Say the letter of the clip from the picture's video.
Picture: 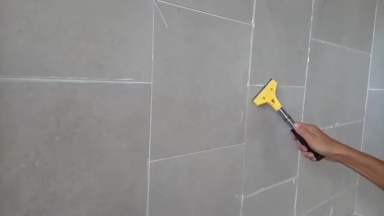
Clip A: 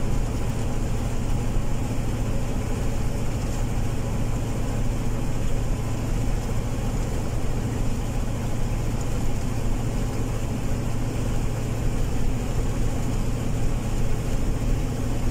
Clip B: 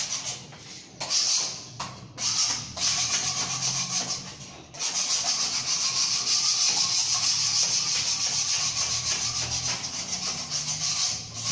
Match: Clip B